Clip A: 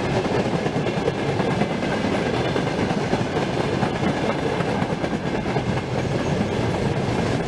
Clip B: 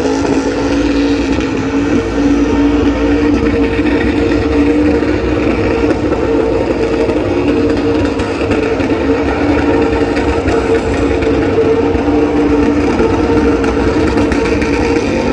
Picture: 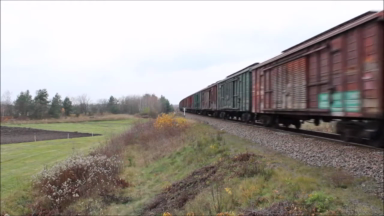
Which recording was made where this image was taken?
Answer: A